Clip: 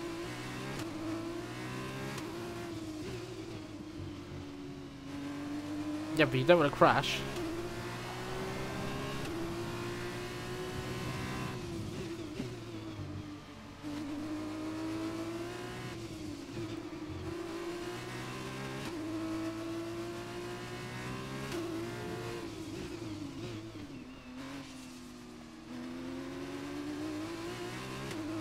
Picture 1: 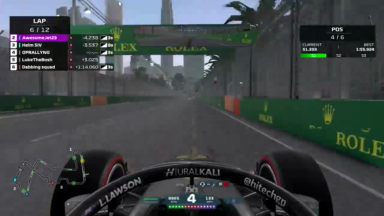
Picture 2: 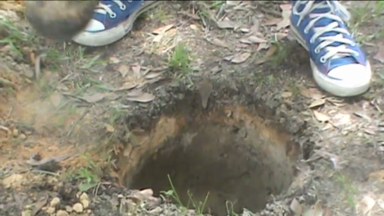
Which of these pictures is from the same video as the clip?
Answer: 1